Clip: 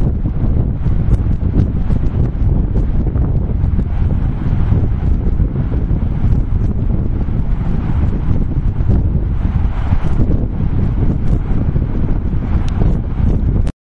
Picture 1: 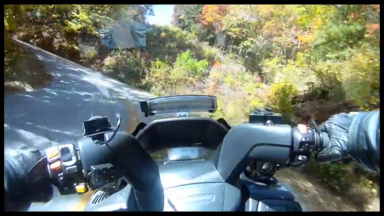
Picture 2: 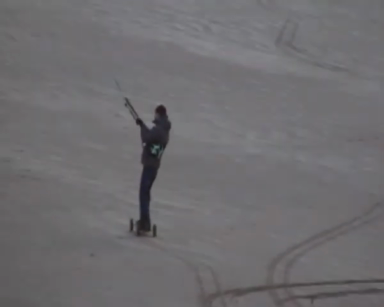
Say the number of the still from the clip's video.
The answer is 2